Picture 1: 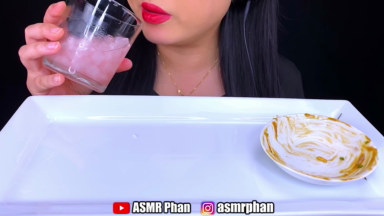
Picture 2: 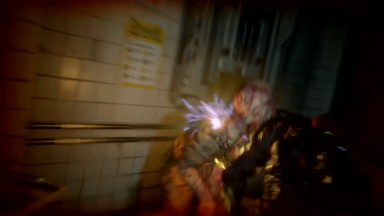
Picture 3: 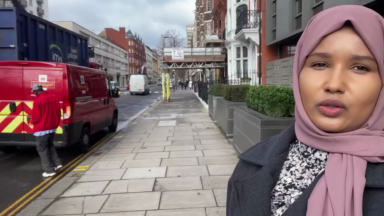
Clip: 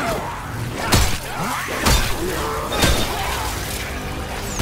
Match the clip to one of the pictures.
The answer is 2